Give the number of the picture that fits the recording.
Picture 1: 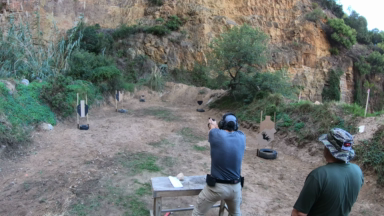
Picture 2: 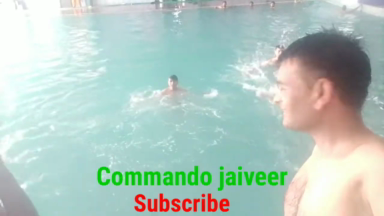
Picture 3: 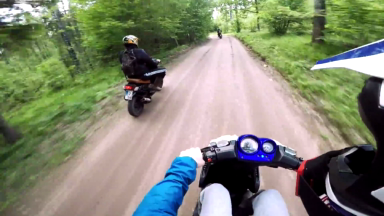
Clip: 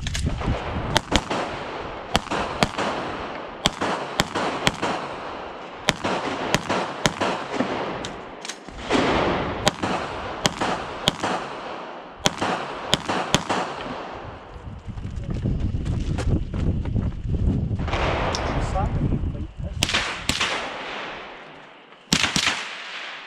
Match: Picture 1